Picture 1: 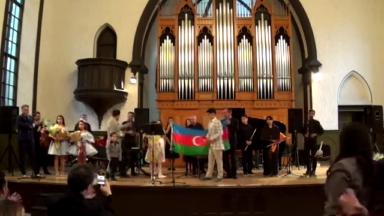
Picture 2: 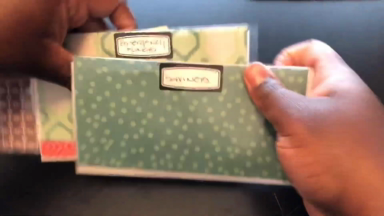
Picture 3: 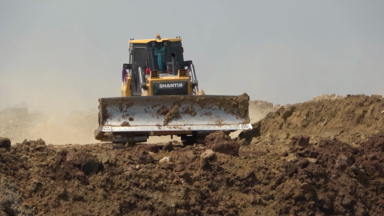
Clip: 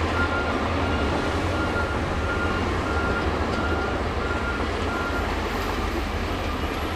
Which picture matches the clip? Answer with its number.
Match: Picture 3